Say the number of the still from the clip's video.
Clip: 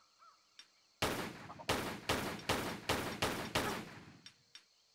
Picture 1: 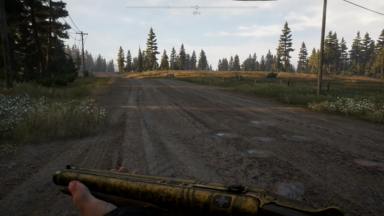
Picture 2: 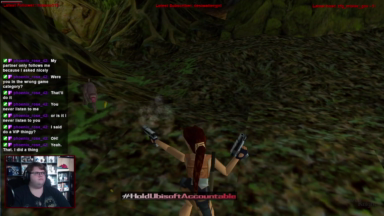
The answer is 2